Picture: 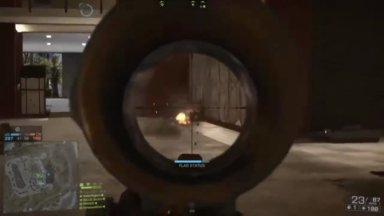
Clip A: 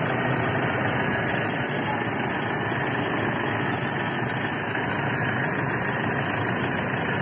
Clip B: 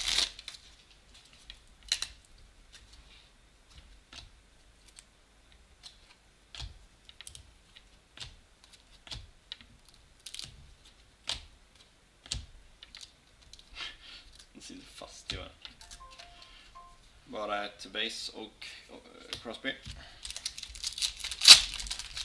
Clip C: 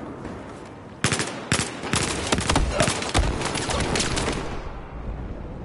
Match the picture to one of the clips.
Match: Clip C